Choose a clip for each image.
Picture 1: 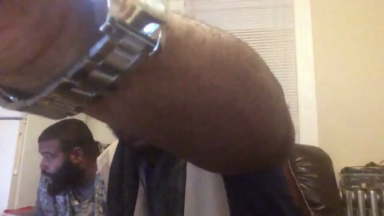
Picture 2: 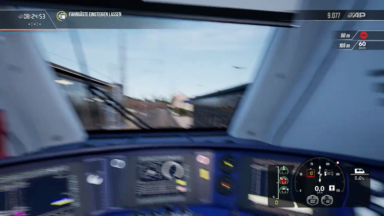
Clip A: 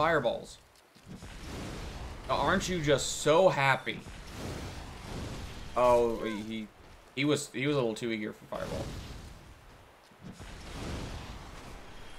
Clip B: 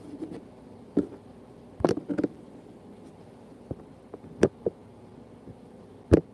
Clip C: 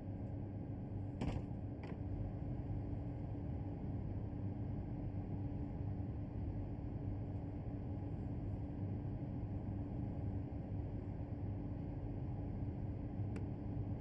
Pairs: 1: B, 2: C